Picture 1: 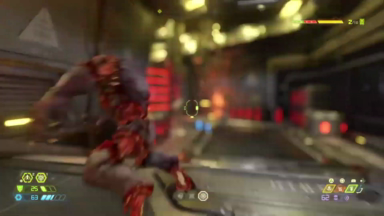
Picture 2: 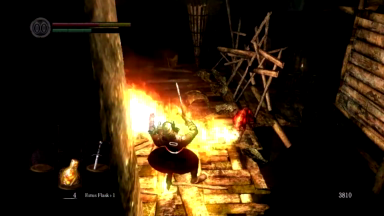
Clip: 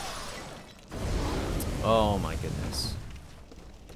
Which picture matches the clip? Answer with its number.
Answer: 2